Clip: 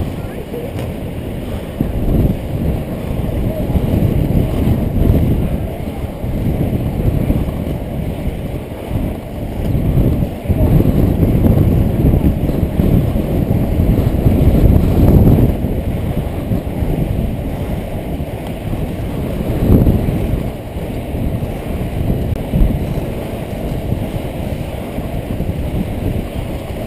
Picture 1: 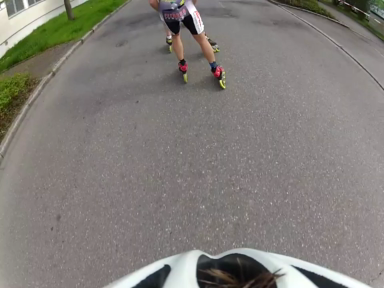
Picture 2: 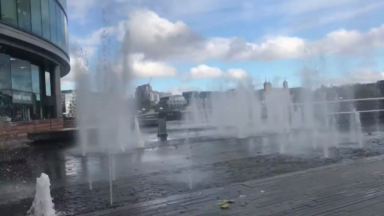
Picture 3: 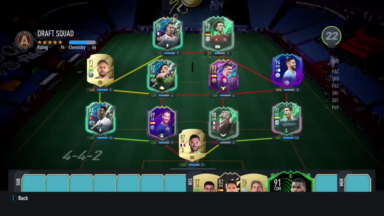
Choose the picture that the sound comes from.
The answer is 1